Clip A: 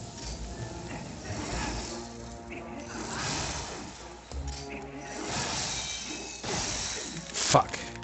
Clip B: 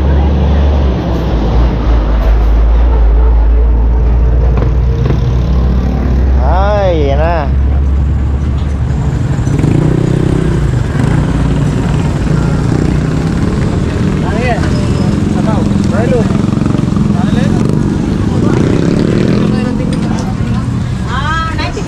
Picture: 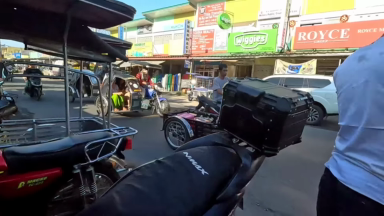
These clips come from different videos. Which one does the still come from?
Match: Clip B